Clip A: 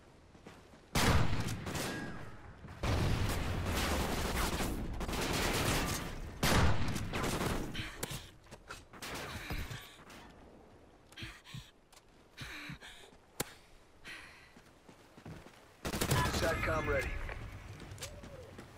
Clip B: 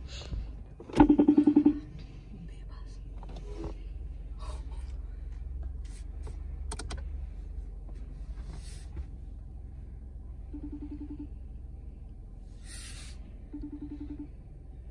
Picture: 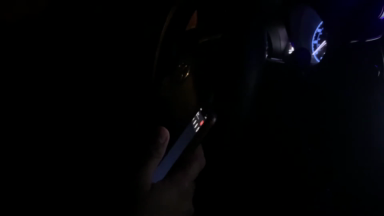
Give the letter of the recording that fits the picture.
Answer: B